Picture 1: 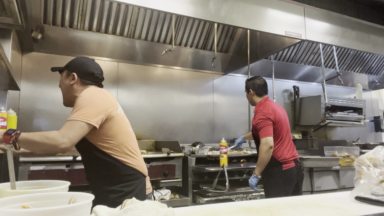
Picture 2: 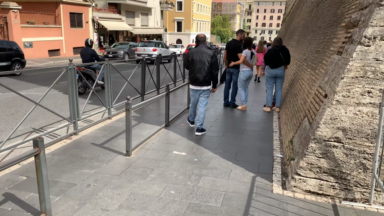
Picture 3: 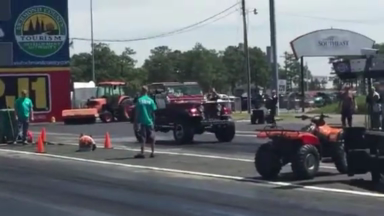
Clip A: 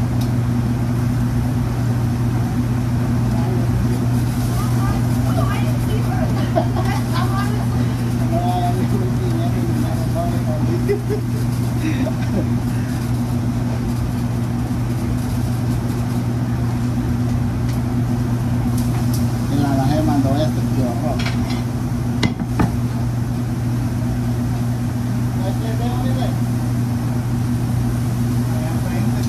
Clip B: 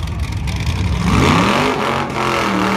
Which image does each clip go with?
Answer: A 1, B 3